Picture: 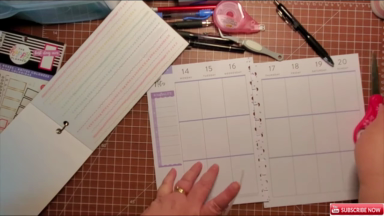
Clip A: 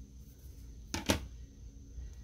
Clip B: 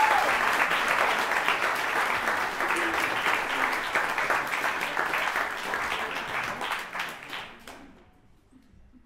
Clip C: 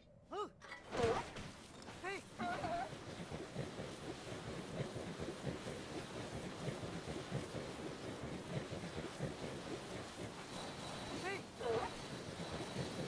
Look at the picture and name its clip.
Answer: A